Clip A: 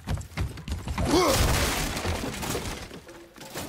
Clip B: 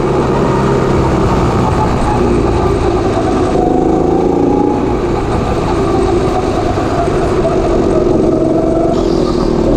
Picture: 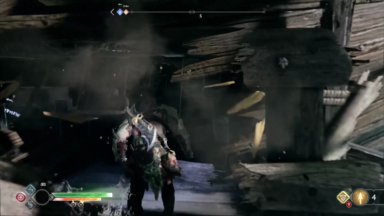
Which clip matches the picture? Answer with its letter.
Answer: A